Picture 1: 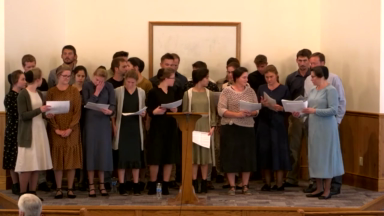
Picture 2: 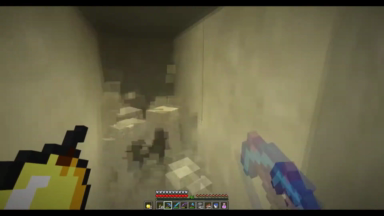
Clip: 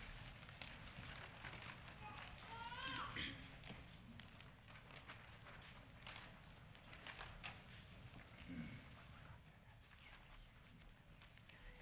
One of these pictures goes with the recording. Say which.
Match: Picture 1